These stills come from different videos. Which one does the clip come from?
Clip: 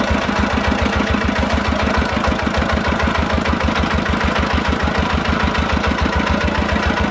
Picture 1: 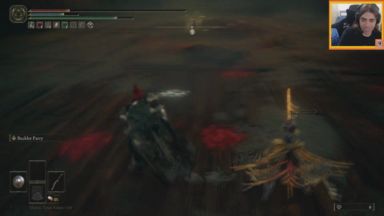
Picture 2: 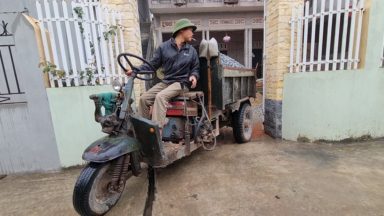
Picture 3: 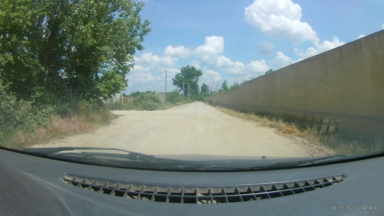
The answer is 2